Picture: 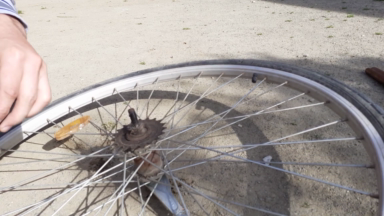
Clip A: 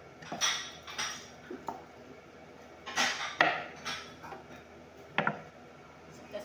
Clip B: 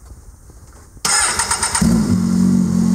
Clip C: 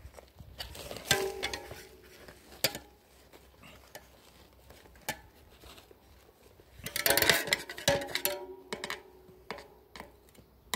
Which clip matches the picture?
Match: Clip C